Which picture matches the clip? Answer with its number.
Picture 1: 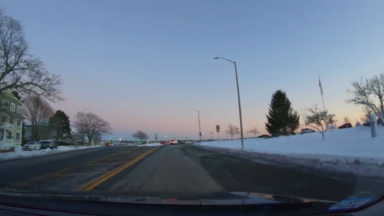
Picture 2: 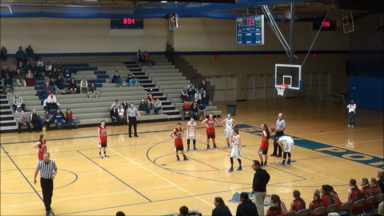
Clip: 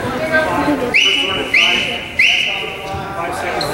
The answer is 2